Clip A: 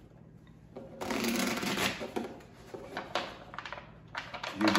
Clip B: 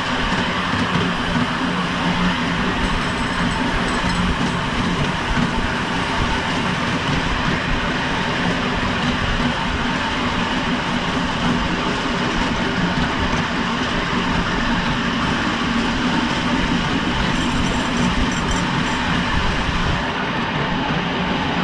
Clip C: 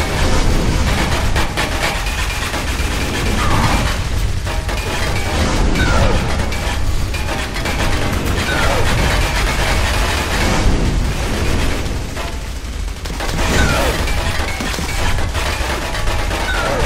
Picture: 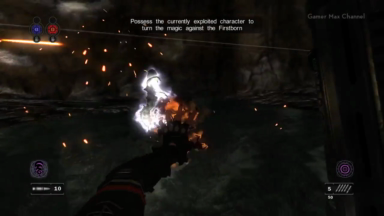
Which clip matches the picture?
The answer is C